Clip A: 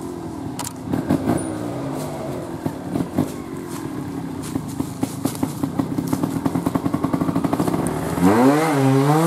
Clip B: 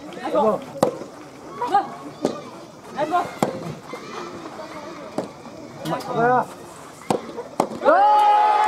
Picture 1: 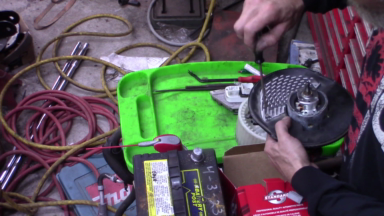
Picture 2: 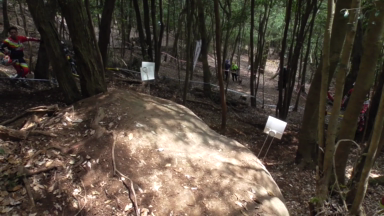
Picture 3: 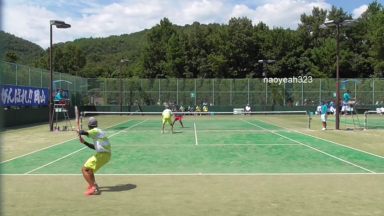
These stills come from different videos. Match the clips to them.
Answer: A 2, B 3